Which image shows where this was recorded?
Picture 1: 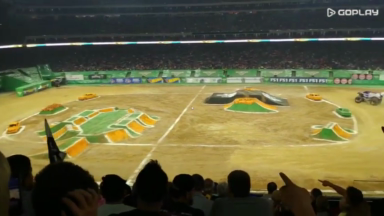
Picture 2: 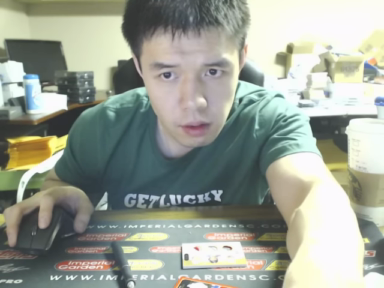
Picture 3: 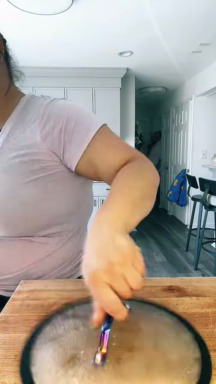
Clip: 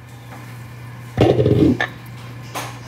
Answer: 3